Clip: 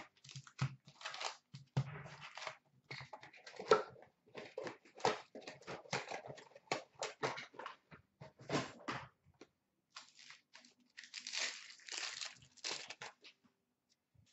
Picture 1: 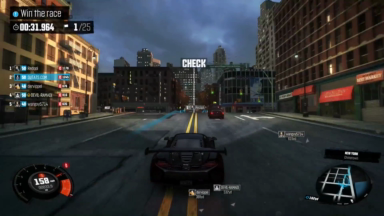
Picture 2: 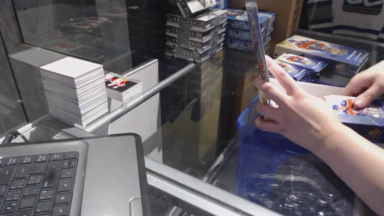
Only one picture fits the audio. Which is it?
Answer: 2